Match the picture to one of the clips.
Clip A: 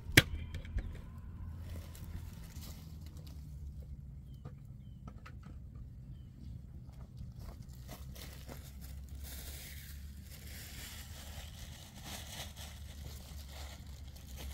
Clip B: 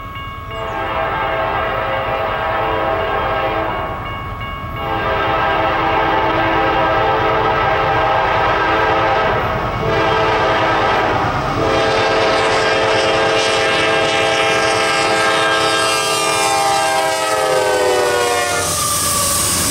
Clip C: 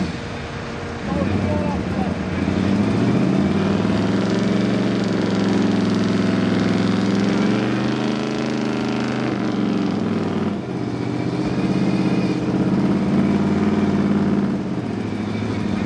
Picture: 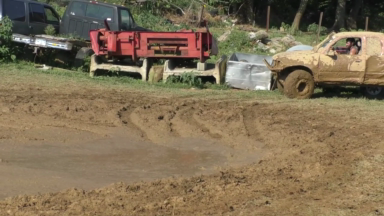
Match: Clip C